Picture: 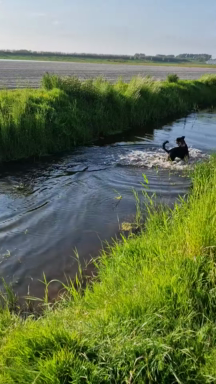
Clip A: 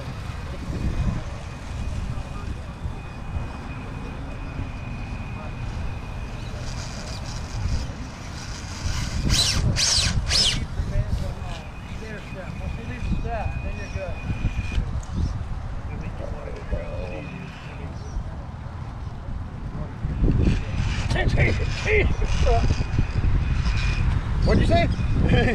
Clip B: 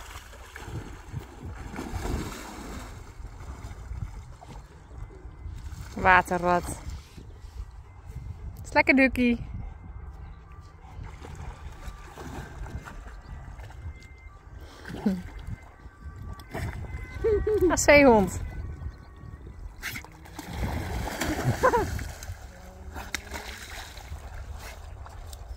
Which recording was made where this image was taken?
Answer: B